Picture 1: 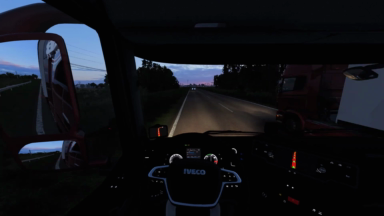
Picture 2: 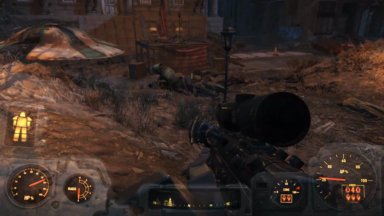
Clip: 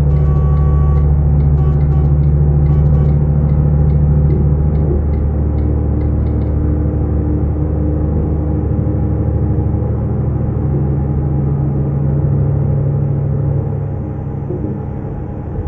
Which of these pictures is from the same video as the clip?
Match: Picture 1